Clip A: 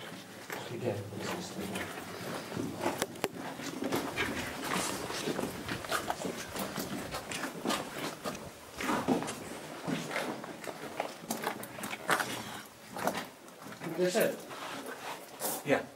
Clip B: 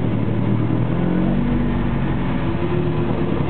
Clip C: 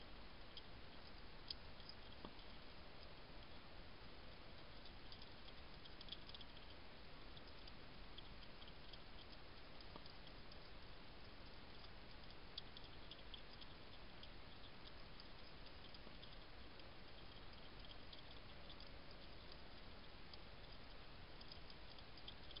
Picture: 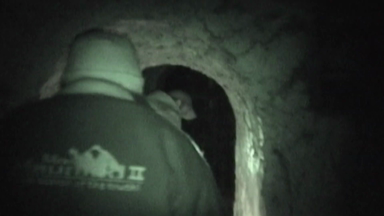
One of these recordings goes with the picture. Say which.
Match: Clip A